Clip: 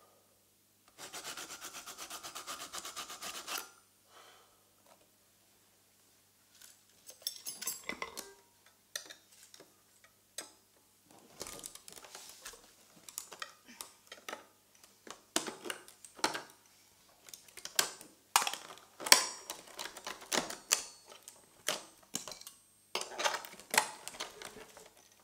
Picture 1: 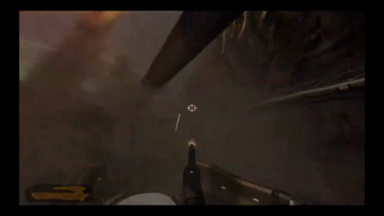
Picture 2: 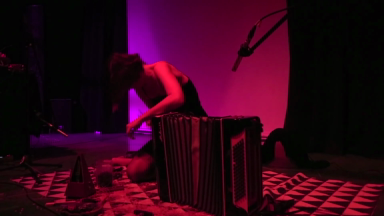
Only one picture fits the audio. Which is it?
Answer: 2